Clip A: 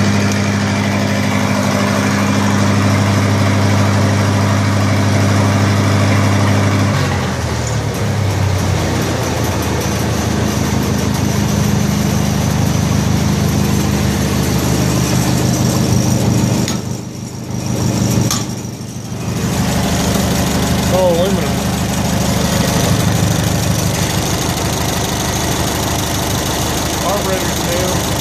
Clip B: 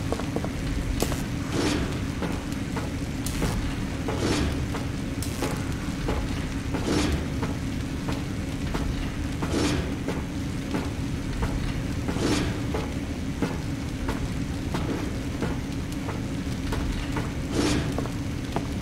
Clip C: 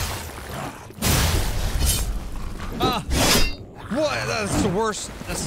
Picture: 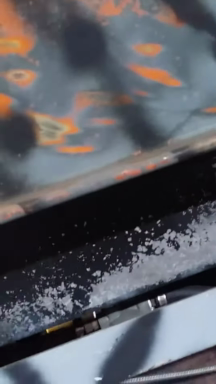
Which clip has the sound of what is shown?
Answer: A